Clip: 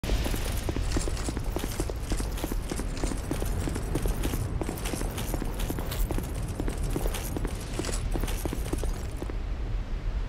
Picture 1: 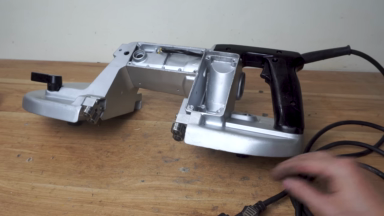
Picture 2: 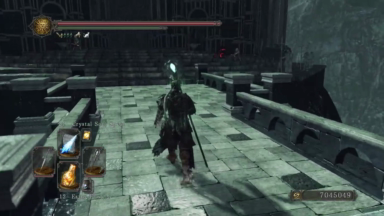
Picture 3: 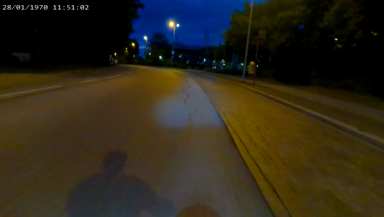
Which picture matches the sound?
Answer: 2